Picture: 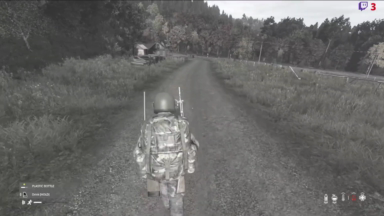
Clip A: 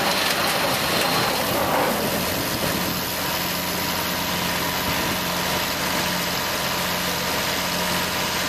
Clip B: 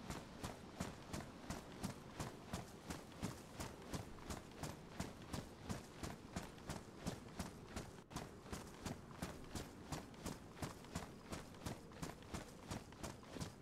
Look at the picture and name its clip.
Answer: B